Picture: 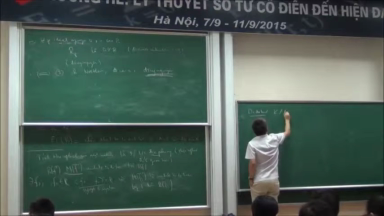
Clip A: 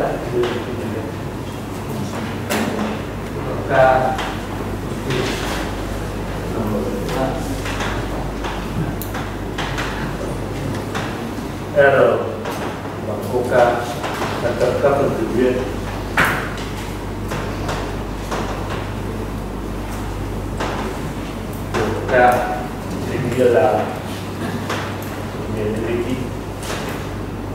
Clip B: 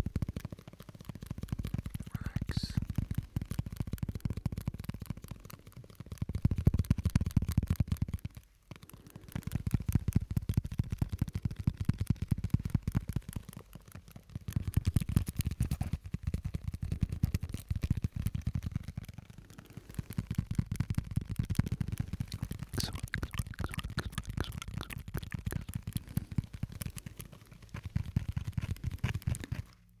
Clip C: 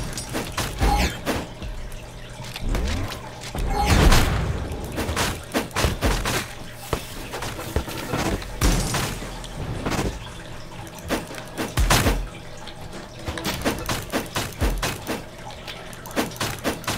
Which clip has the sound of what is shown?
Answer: A